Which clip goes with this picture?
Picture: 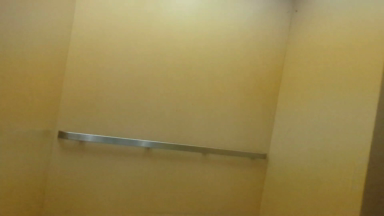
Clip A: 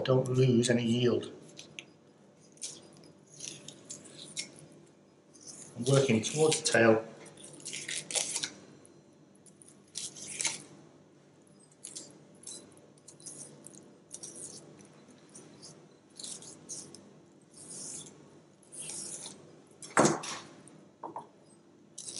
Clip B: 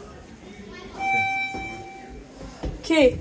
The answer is B